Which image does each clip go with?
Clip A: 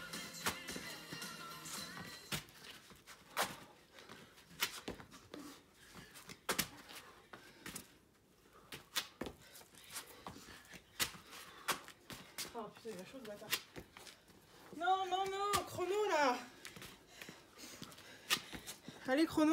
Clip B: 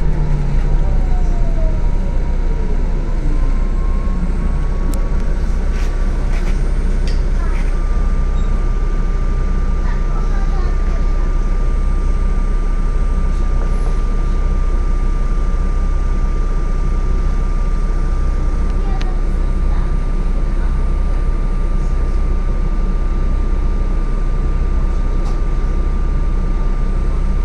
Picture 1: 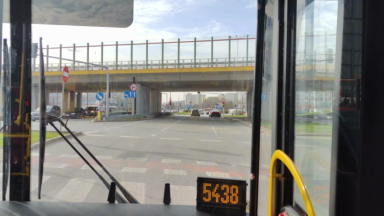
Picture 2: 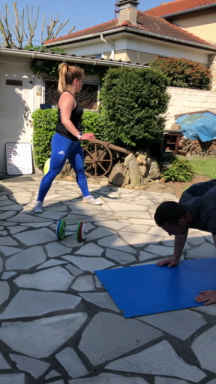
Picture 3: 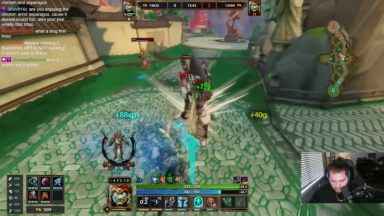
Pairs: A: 2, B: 1